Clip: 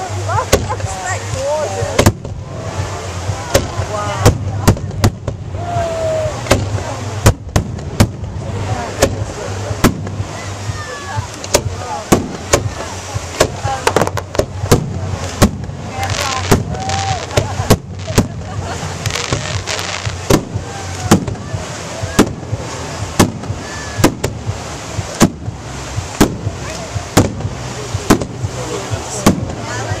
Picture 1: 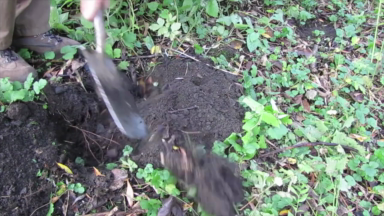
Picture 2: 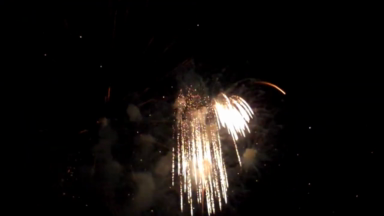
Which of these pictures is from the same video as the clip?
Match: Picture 2